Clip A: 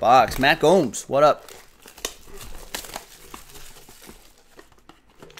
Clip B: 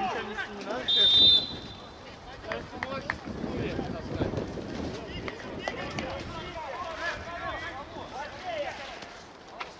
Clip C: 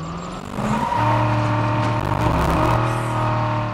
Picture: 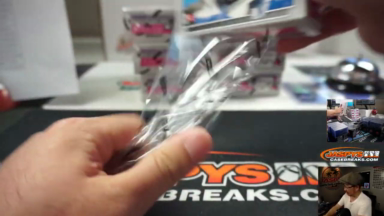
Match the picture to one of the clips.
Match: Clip A